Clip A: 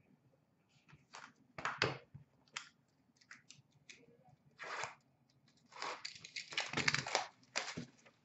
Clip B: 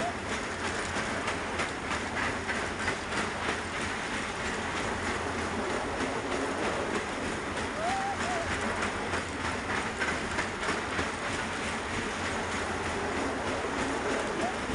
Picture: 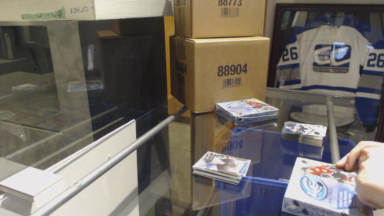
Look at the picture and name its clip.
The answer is A